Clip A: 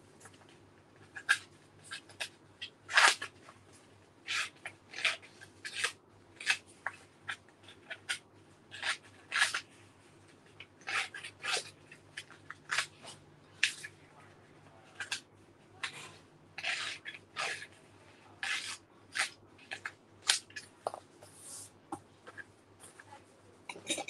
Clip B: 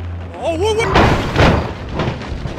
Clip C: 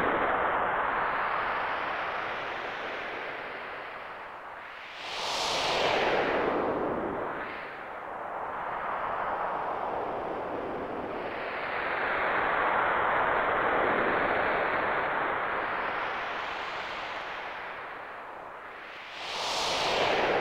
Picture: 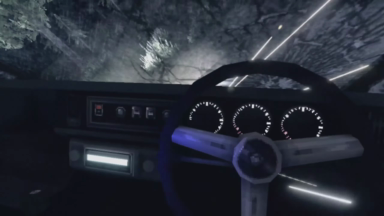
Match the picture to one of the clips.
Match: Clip B